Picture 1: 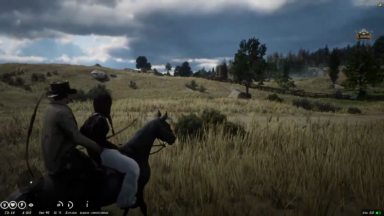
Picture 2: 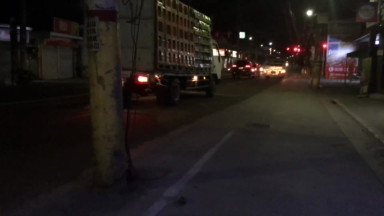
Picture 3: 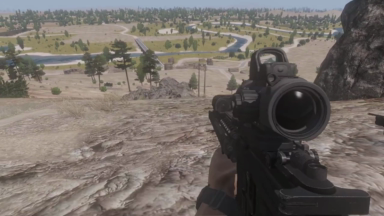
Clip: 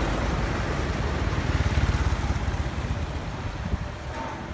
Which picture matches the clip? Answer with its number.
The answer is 2